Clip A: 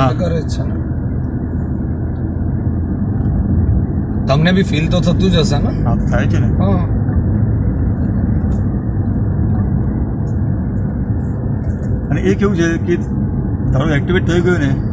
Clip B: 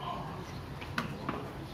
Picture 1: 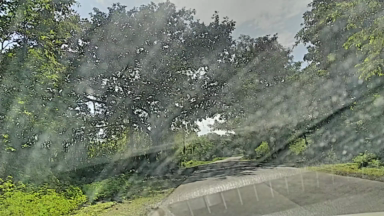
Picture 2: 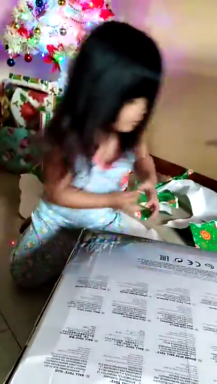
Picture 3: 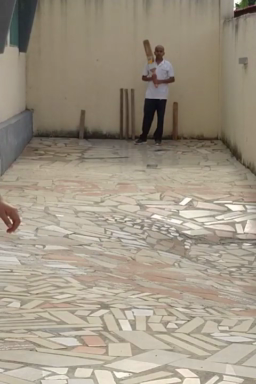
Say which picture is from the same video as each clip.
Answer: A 1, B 3